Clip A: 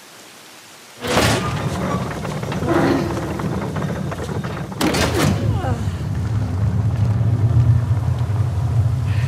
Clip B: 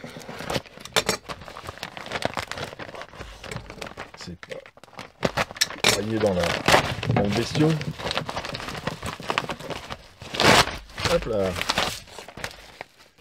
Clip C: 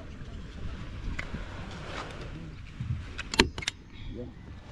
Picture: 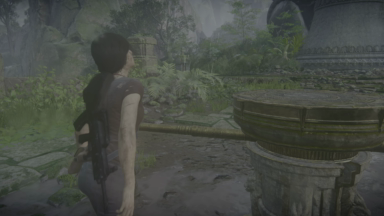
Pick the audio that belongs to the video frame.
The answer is A